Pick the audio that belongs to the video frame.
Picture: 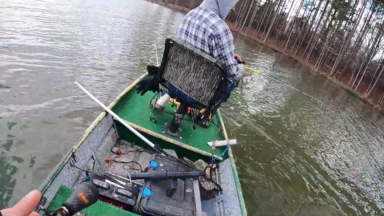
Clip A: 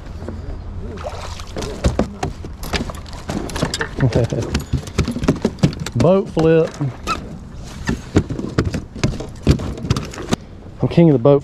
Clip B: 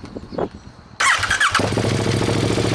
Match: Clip A